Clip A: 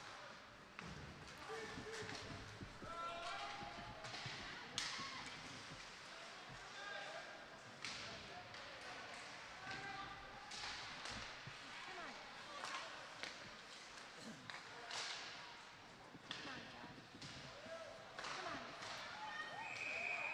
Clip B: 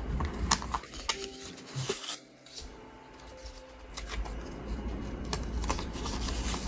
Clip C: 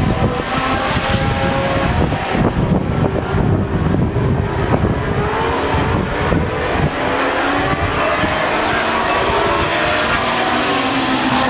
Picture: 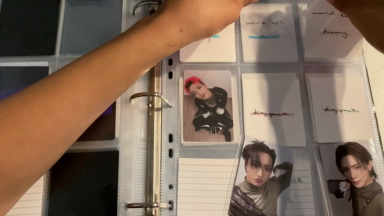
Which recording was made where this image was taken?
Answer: B